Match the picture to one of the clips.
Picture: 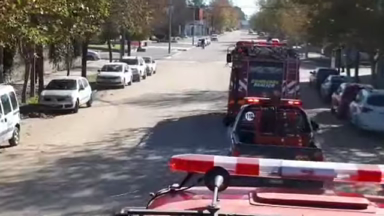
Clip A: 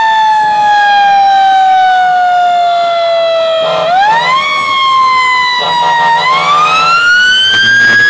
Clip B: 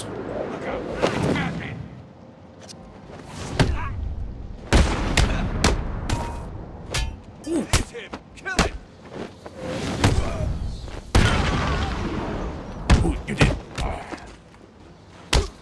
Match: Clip A